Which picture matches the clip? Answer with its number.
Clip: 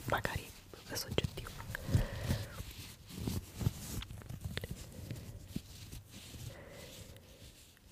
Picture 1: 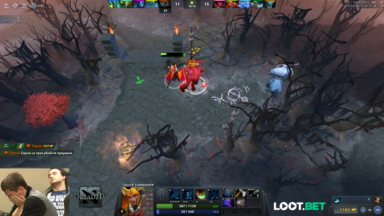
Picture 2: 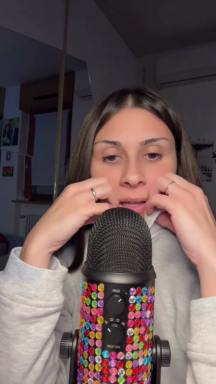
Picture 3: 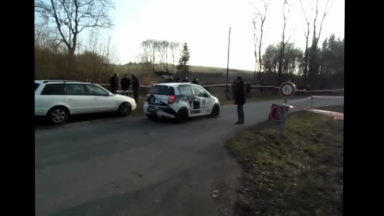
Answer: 2